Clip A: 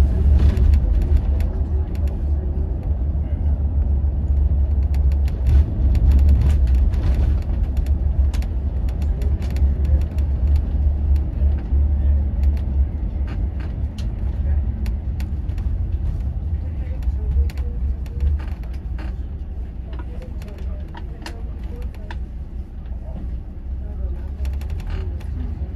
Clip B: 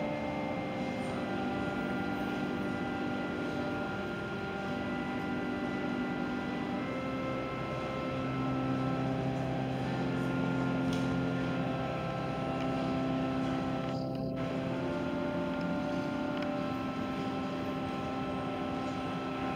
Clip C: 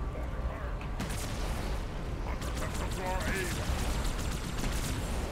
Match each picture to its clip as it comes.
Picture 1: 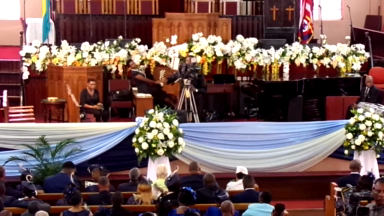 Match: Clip B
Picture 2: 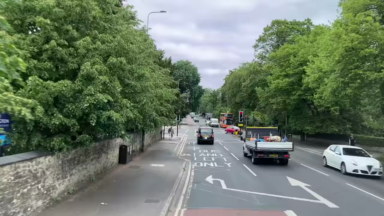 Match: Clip A